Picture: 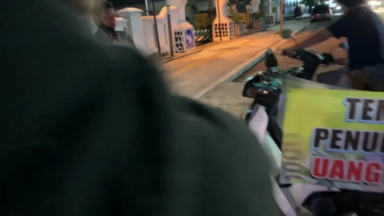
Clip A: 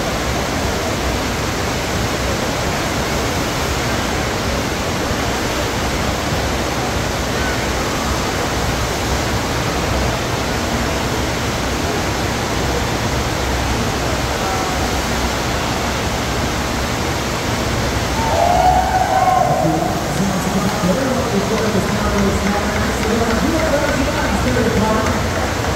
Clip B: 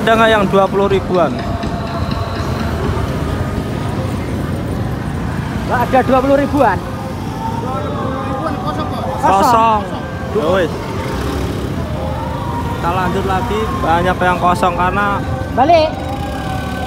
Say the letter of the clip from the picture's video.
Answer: B